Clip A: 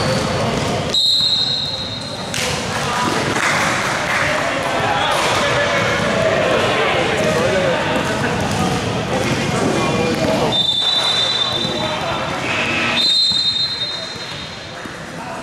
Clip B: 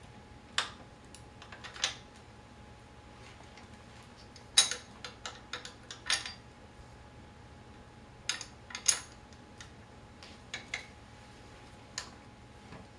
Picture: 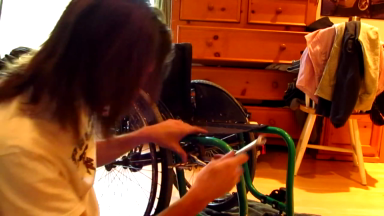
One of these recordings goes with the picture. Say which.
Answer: B